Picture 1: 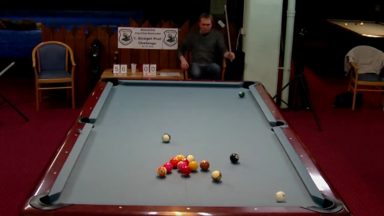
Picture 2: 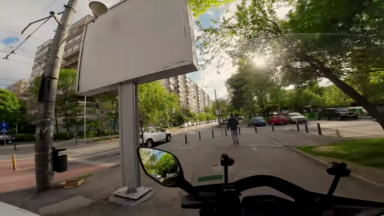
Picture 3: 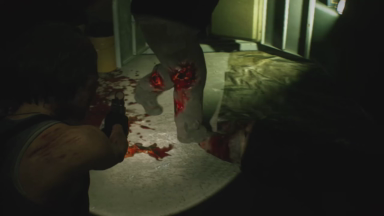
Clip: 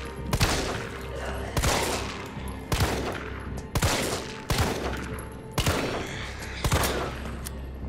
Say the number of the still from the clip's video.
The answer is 3